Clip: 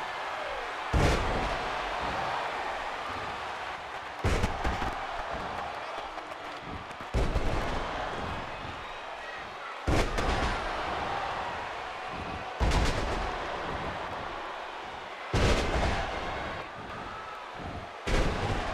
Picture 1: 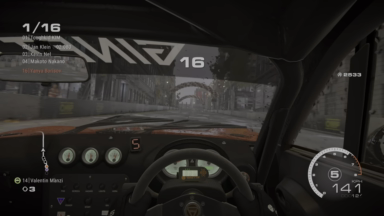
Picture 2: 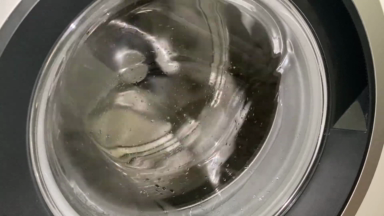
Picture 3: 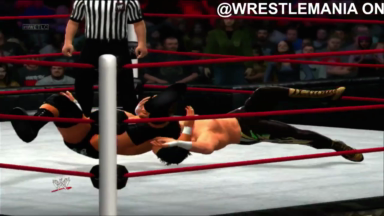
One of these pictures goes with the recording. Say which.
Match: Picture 3